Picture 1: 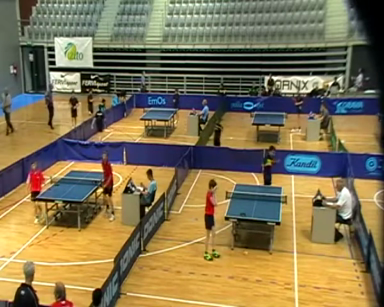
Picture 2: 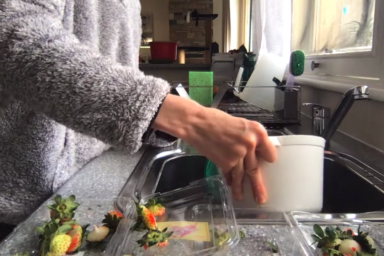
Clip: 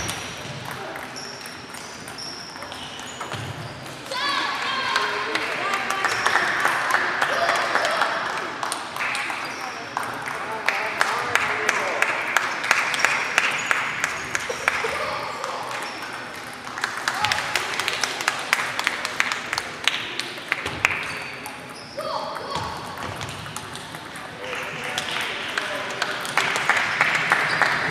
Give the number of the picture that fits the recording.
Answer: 1